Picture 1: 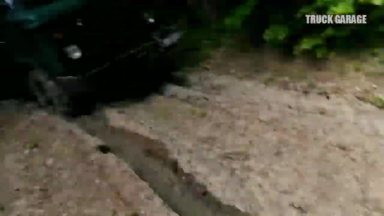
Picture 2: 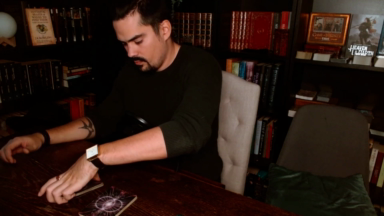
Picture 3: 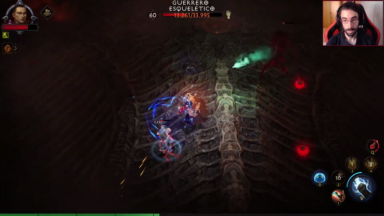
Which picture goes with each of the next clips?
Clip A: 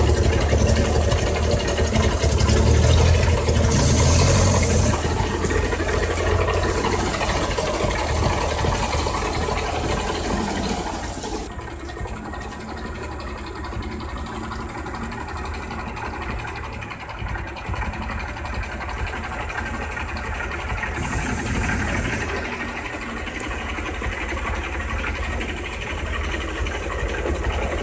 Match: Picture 1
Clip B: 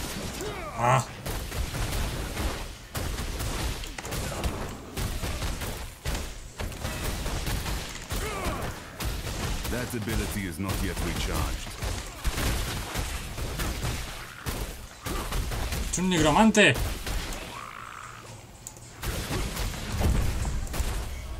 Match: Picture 3